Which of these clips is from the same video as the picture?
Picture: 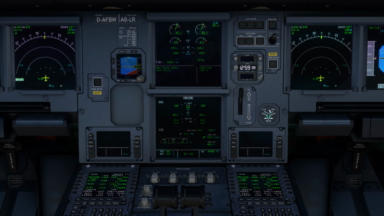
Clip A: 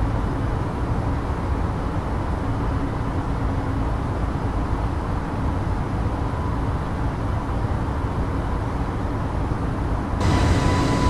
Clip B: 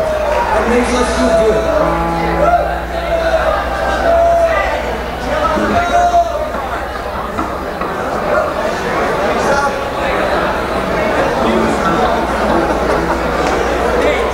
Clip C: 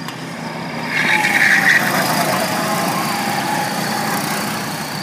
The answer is A